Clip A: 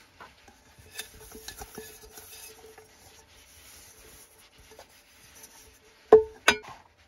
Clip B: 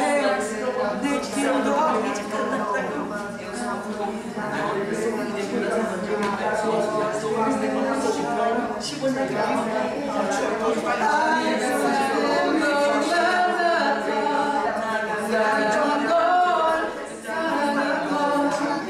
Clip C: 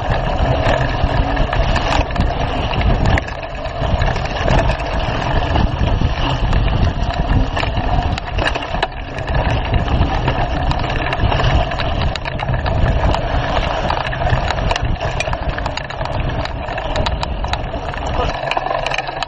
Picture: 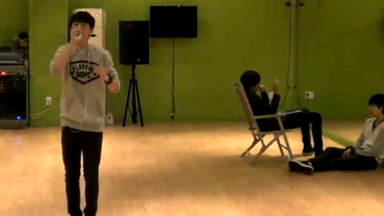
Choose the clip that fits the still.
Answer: B